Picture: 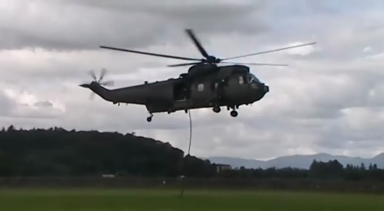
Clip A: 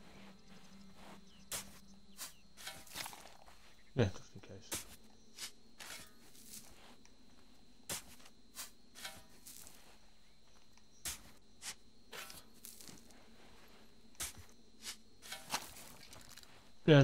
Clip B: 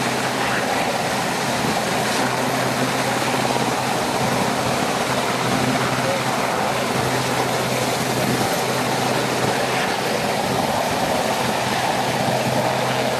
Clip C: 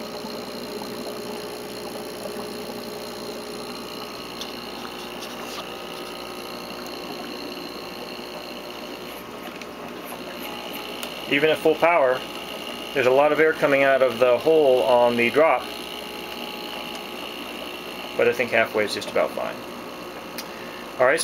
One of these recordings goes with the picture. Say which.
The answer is B